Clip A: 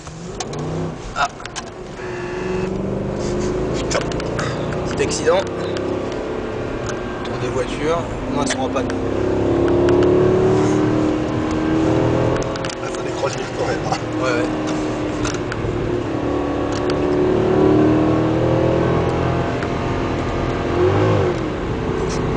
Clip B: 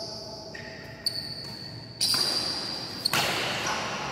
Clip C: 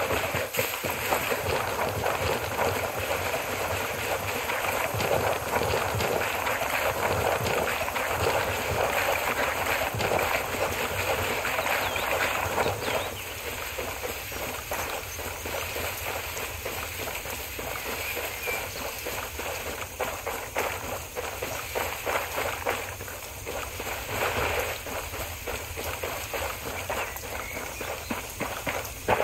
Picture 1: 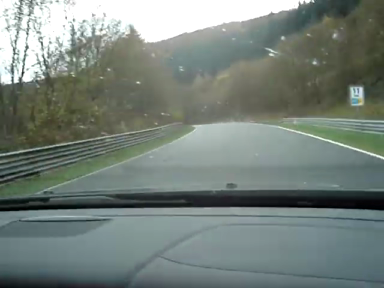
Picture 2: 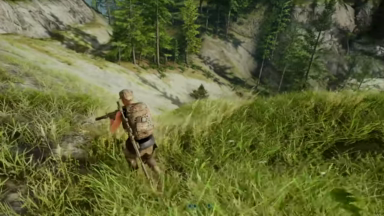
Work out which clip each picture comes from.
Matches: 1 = A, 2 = C